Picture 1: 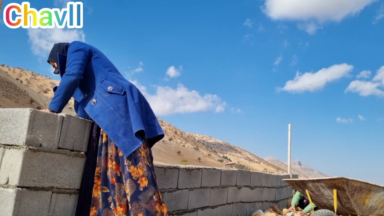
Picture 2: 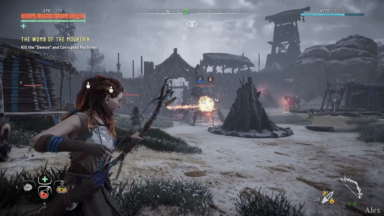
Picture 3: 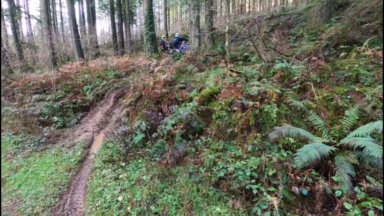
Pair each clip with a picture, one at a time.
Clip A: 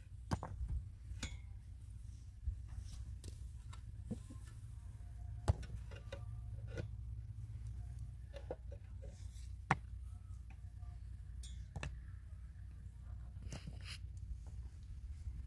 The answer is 1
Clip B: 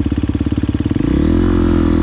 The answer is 3